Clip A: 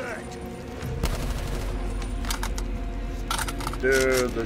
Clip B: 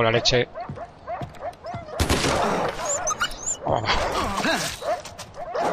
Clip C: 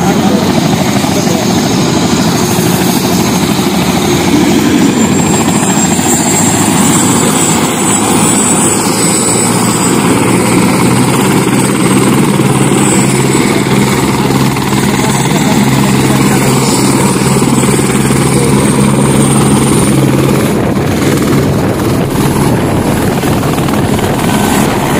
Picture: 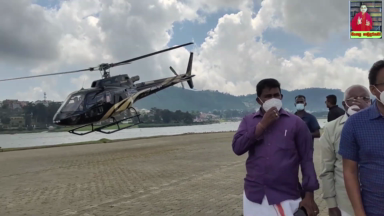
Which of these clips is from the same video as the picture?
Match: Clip C